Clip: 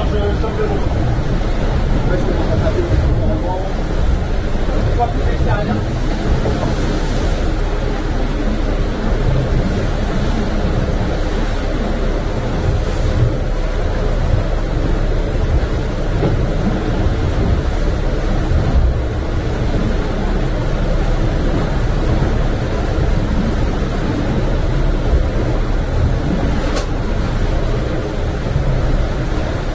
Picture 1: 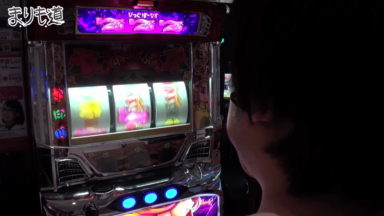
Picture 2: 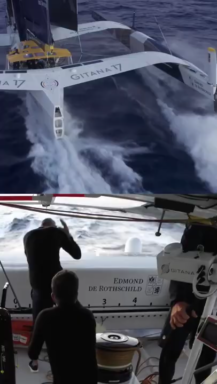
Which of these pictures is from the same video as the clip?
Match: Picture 2